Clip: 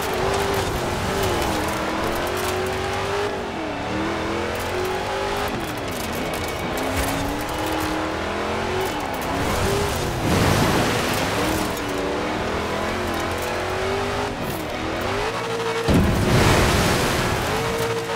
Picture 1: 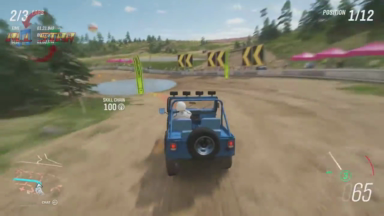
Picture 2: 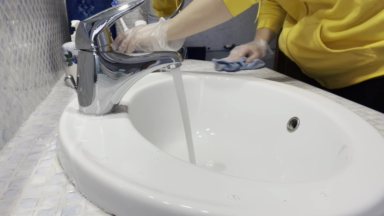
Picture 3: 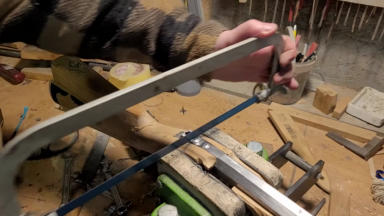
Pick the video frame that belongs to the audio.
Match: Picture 1